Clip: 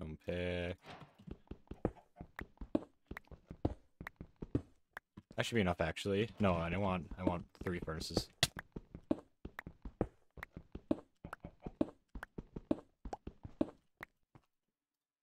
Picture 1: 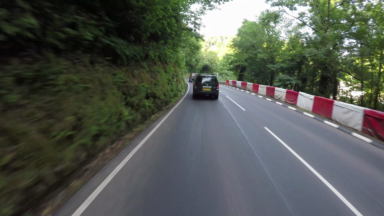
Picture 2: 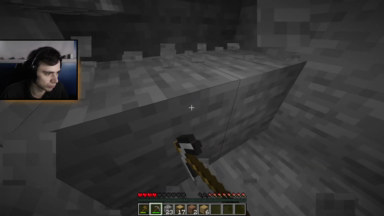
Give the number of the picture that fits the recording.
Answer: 2